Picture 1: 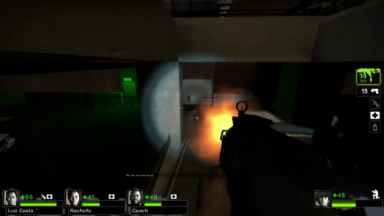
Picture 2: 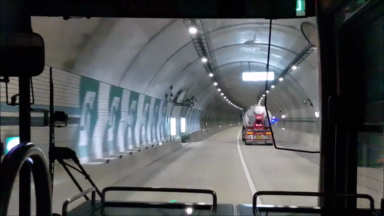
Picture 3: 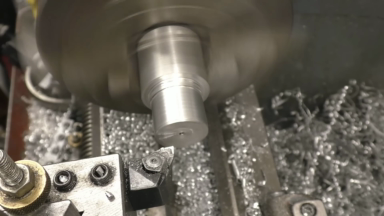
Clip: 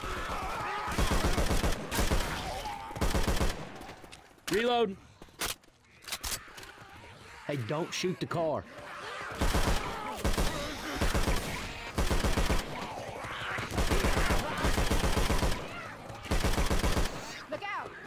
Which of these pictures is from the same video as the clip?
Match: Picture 1